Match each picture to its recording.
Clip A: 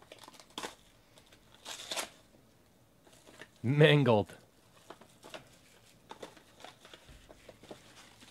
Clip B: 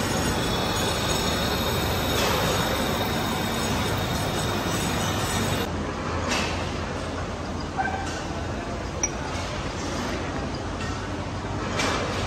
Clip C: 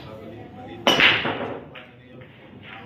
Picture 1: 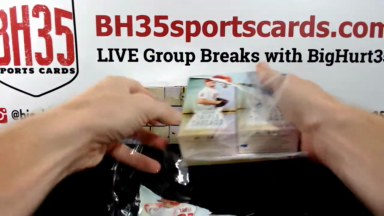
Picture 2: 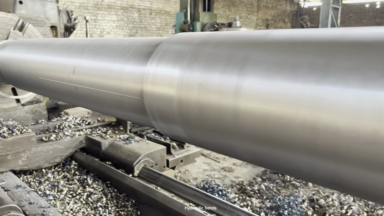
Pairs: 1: A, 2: B